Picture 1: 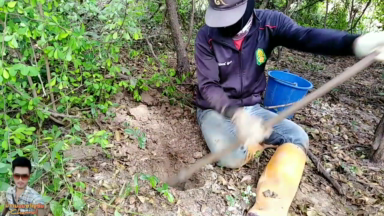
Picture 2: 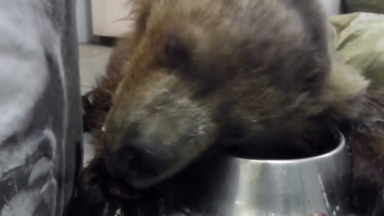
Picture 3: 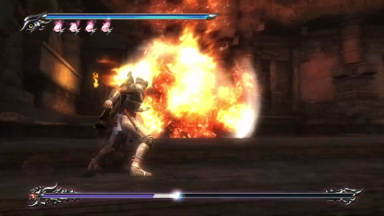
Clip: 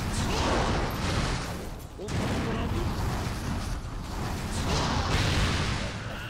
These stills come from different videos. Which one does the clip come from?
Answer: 3